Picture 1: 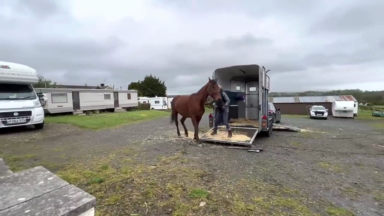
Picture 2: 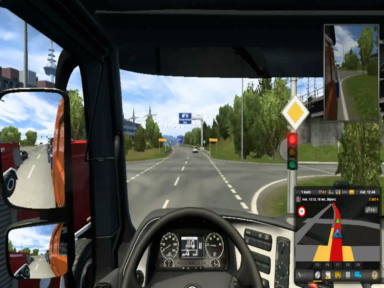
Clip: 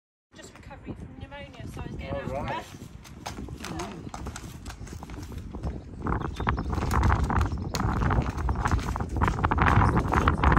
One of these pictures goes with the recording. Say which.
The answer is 1